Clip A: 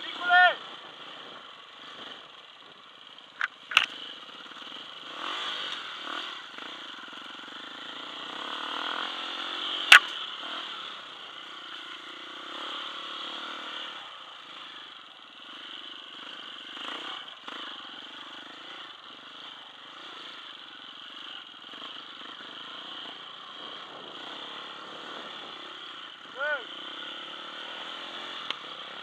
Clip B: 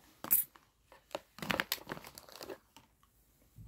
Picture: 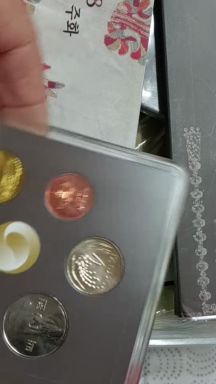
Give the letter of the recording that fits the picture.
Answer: B